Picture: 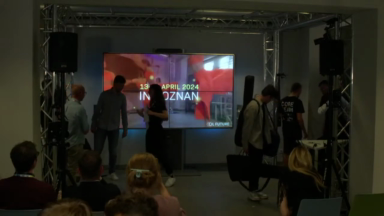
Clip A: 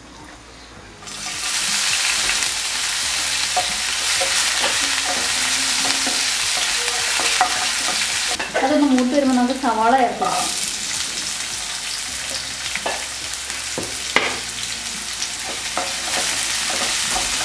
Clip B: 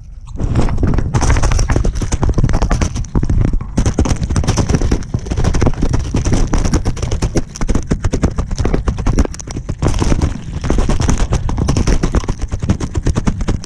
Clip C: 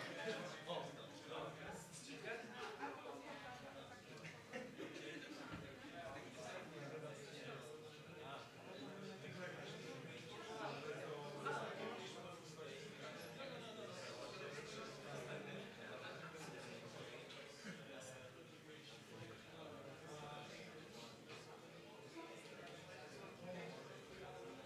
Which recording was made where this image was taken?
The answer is C